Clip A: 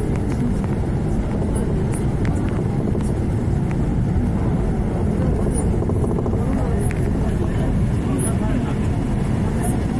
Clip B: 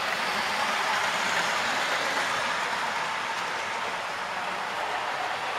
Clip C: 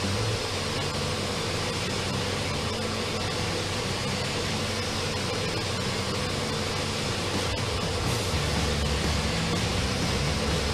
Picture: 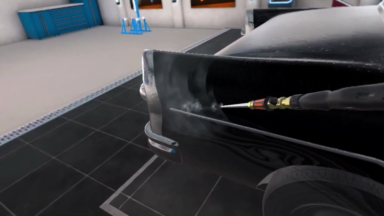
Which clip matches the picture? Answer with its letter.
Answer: C